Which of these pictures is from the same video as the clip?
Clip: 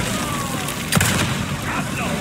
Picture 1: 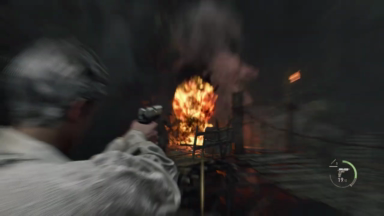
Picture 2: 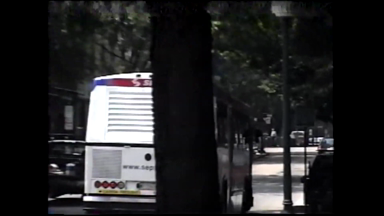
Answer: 1